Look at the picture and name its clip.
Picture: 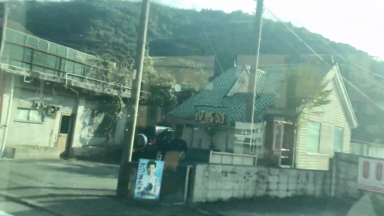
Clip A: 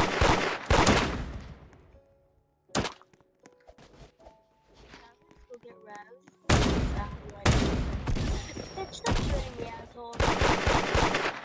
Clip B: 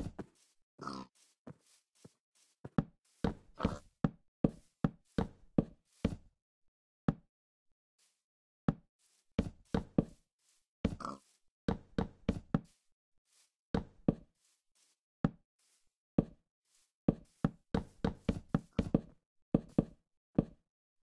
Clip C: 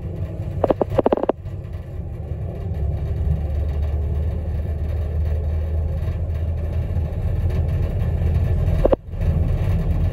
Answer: C